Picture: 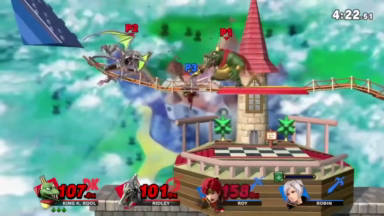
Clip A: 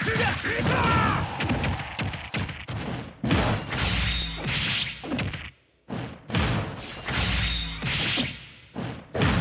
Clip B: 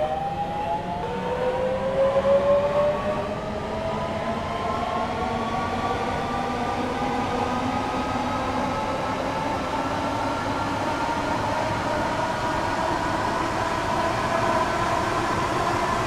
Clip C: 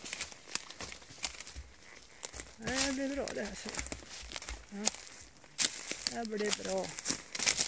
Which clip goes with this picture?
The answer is A